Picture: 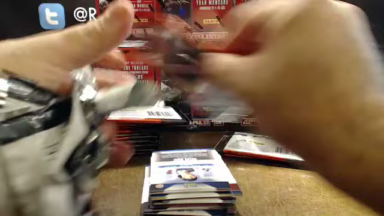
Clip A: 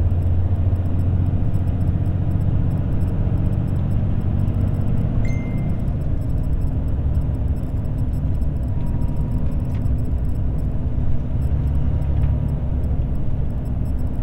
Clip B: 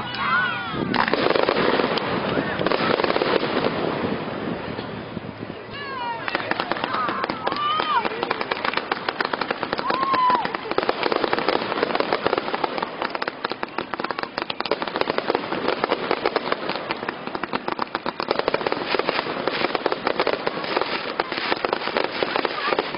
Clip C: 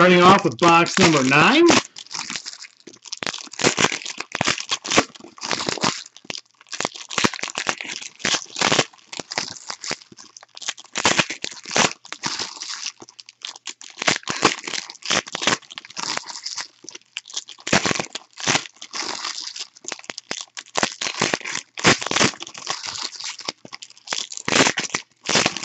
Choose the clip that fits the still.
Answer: C